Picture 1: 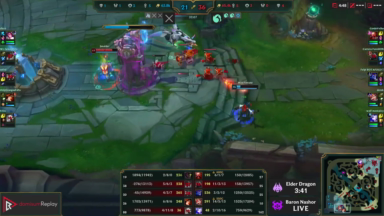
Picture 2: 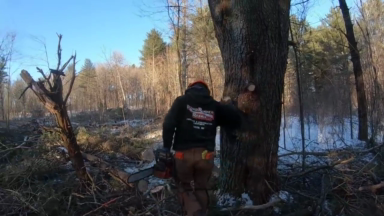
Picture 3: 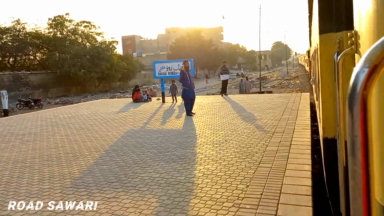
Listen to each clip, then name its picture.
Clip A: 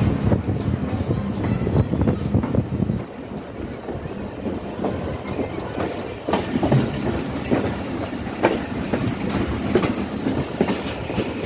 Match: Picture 3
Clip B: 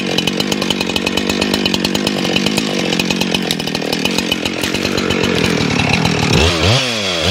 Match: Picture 2